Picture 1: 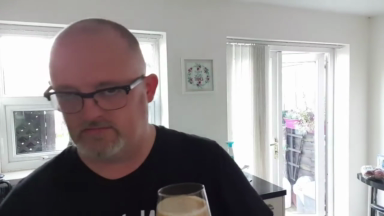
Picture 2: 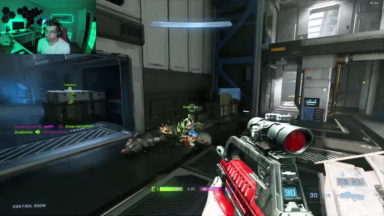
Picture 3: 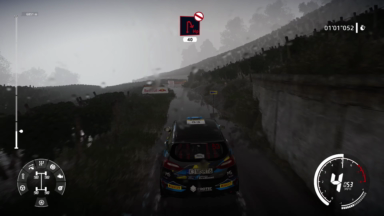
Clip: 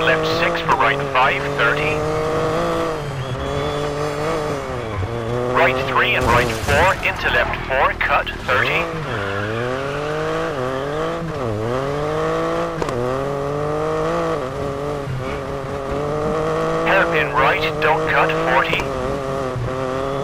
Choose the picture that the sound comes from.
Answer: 3